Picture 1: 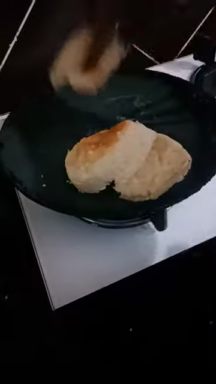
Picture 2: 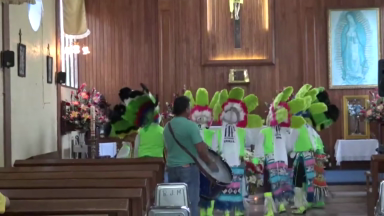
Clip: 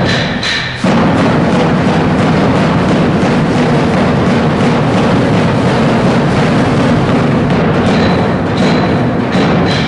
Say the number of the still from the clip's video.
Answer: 2